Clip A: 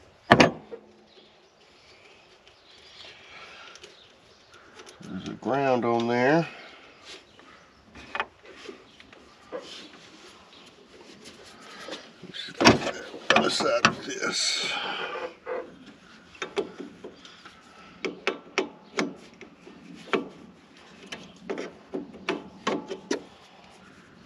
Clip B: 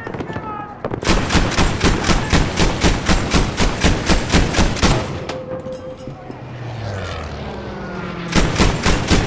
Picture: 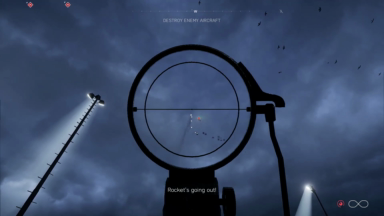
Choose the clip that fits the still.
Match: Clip B